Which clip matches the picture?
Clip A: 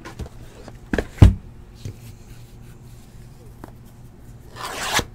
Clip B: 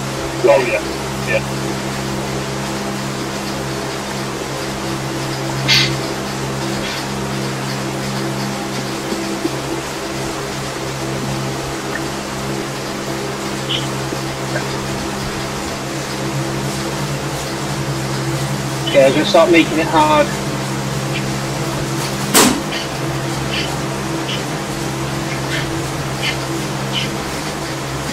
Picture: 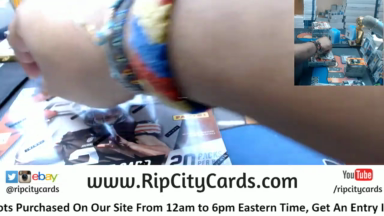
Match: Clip A